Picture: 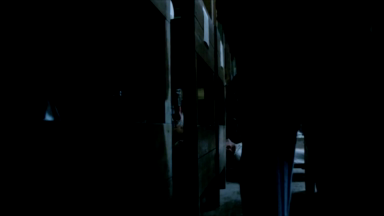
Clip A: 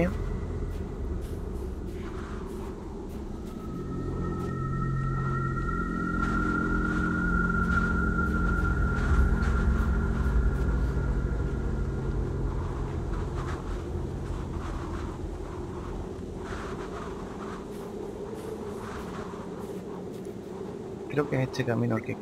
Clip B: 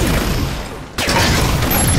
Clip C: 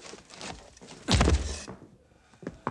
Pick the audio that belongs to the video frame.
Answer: C